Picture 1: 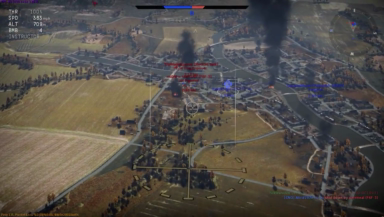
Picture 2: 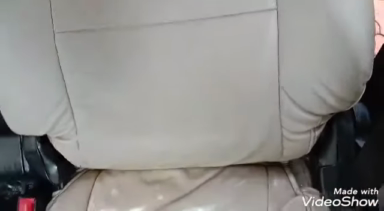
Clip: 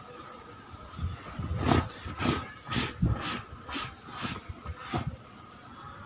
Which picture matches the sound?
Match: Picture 2